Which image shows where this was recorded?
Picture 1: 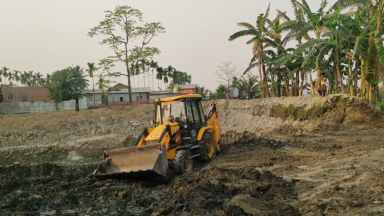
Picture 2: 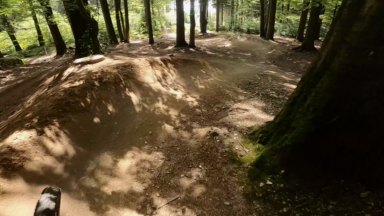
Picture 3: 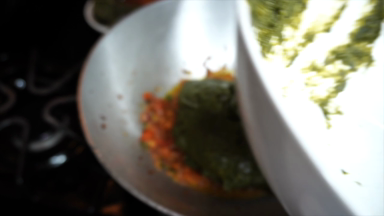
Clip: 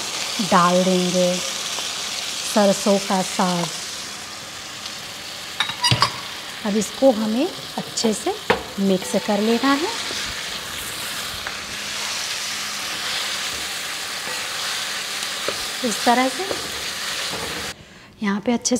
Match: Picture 3